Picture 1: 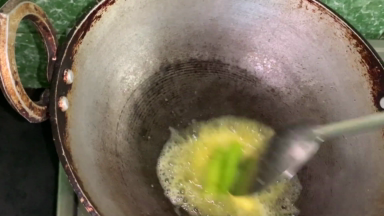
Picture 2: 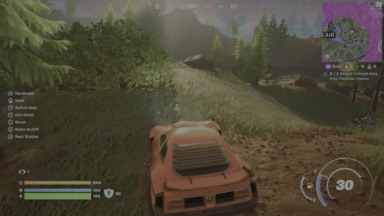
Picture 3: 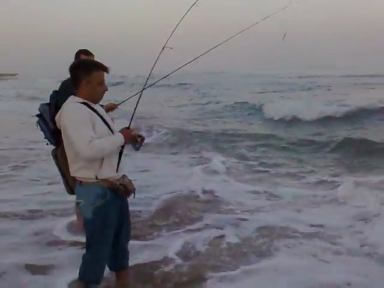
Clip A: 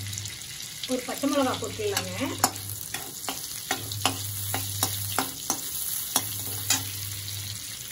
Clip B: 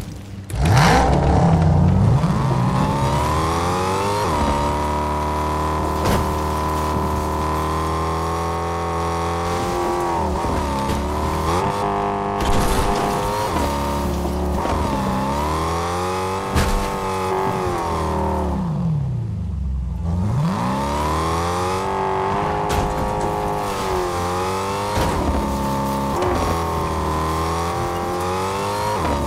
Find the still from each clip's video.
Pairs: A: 1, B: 2